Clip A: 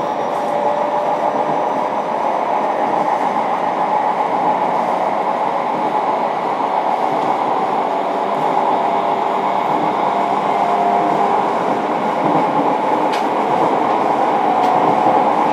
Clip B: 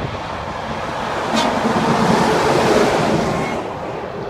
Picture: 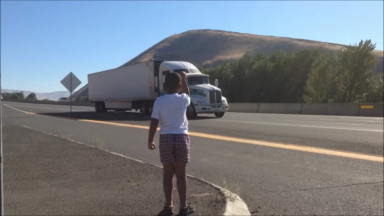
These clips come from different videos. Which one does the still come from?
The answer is B